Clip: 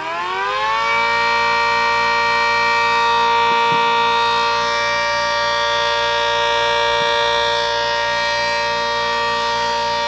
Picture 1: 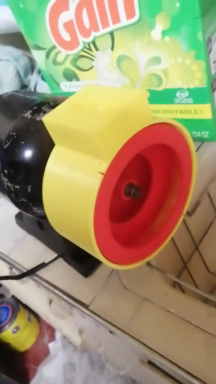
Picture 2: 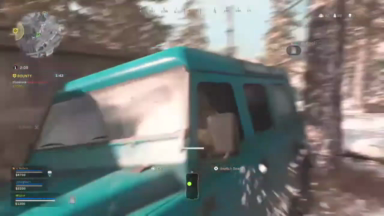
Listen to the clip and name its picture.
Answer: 1